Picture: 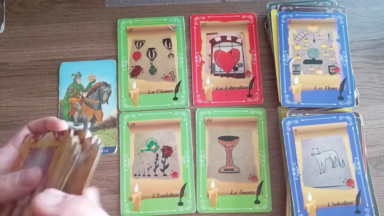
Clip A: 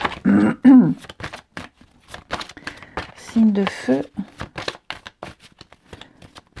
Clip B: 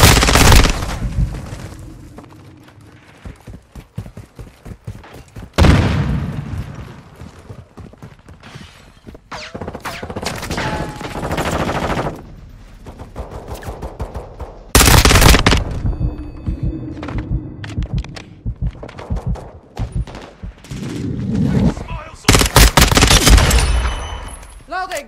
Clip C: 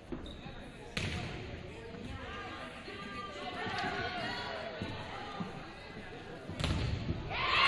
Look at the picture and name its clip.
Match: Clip A